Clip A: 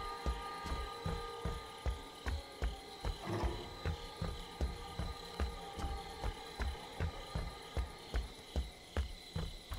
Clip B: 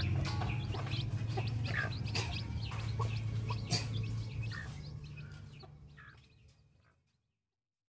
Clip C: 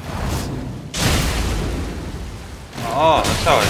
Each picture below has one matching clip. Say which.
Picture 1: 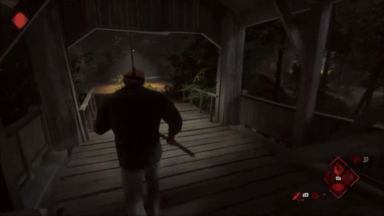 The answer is A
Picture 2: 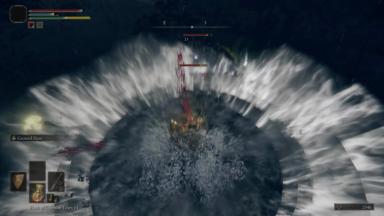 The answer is C